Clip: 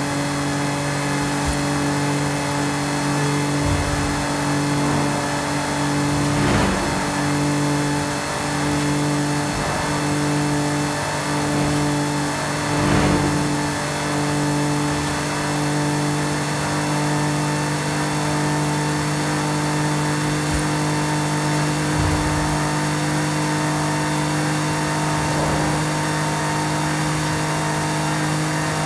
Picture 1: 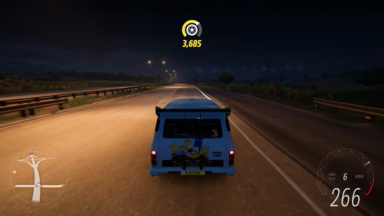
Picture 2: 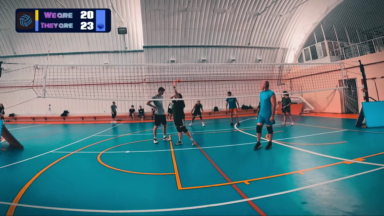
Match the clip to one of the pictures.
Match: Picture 1